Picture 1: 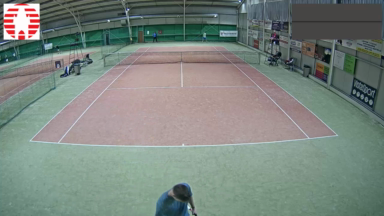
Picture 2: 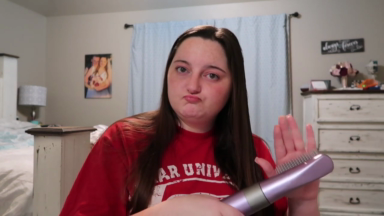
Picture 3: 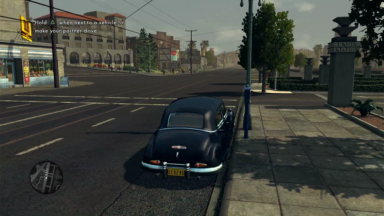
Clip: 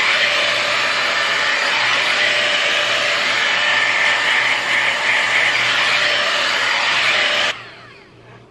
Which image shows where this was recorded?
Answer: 2